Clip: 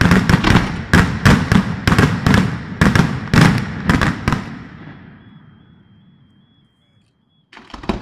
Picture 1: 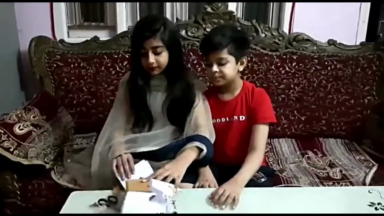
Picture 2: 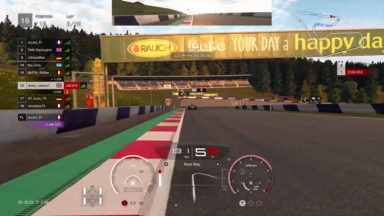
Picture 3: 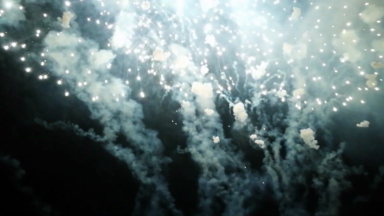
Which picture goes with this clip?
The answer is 3